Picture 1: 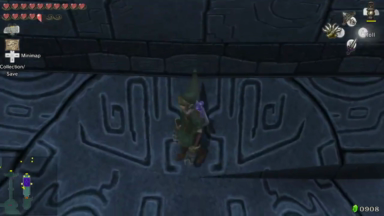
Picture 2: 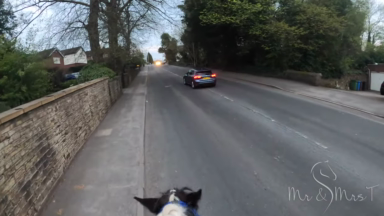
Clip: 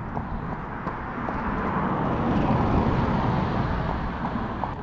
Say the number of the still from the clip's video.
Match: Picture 2